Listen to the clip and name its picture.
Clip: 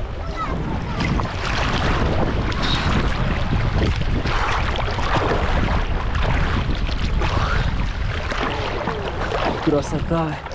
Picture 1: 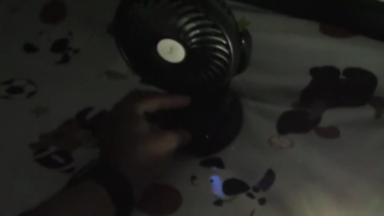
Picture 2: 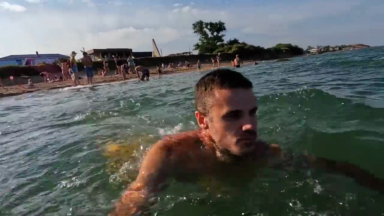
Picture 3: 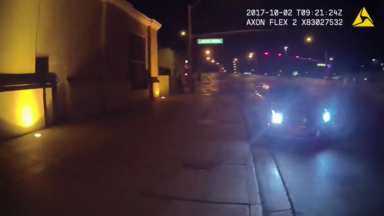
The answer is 2